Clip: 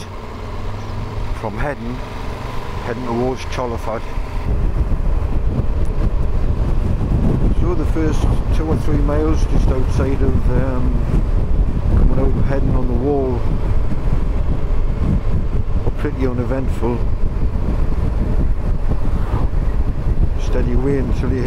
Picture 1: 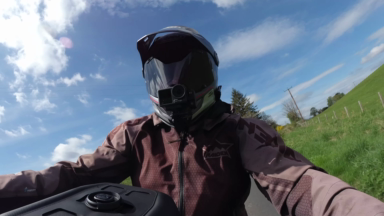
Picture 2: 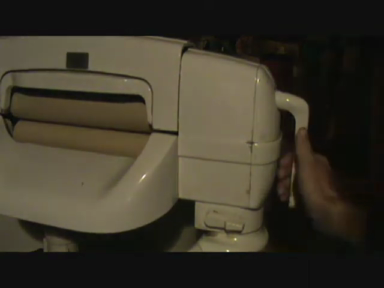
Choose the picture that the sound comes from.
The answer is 1